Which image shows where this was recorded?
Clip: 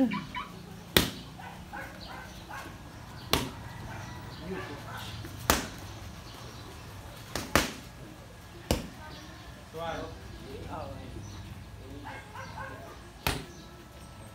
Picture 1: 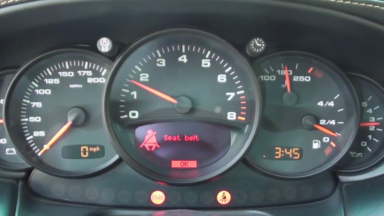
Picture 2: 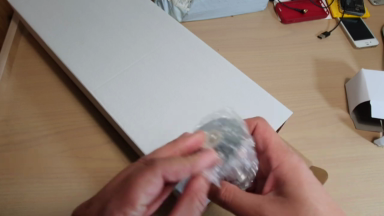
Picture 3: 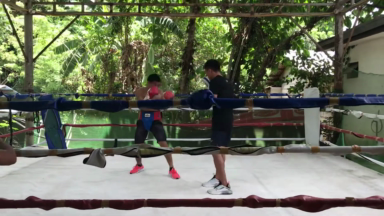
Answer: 3